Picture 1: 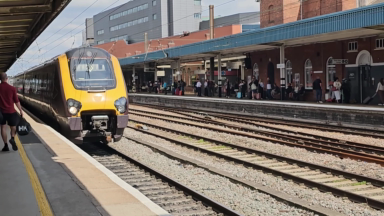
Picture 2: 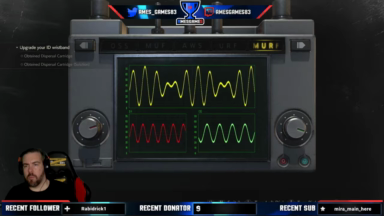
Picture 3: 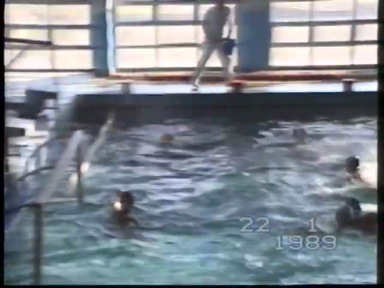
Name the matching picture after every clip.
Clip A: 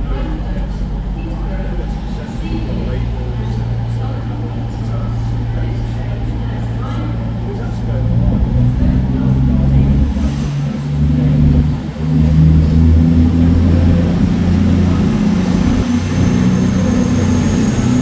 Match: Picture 1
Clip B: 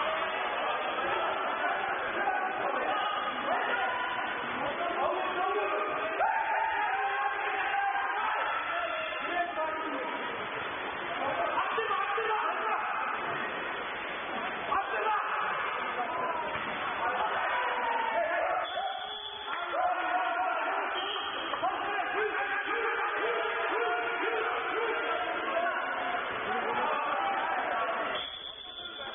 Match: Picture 3